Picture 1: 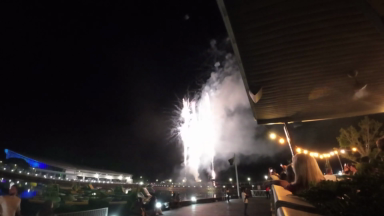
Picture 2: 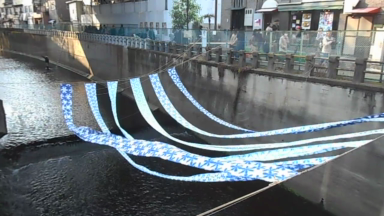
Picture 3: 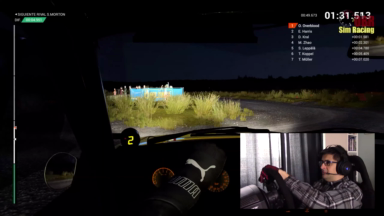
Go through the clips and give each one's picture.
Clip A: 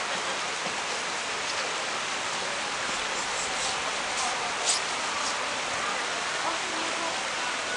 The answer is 2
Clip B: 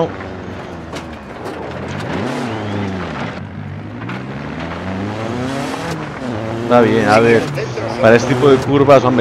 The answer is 3